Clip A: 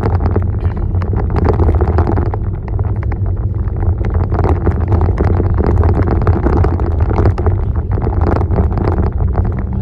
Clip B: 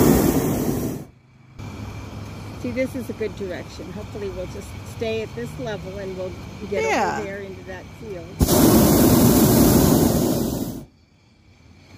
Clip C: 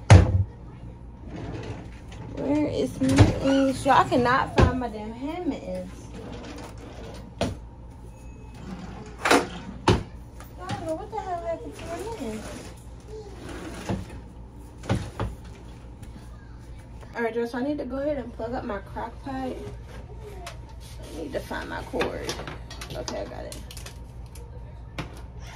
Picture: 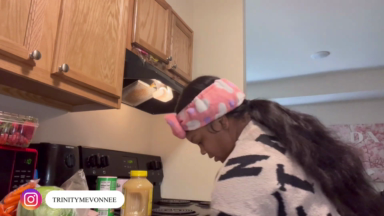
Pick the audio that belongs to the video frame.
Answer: C